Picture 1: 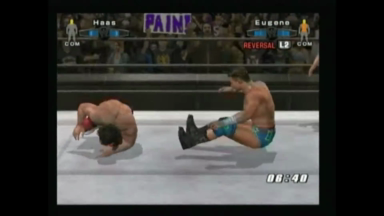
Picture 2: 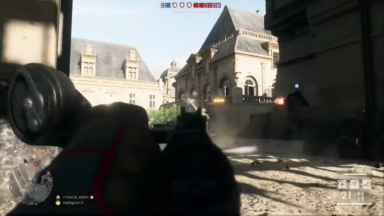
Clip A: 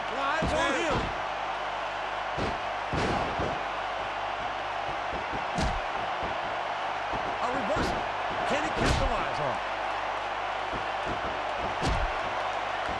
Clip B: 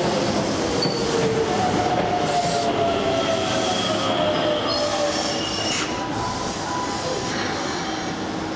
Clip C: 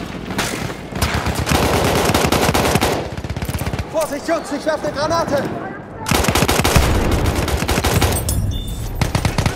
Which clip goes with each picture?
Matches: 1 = A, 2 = C